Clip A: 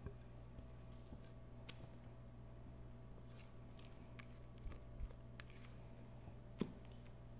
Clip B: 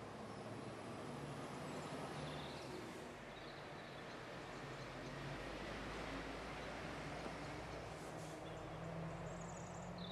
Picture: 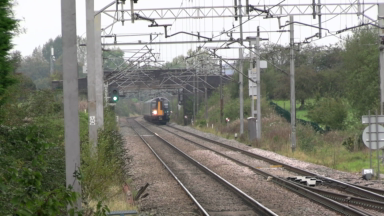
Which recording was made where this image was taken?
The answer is B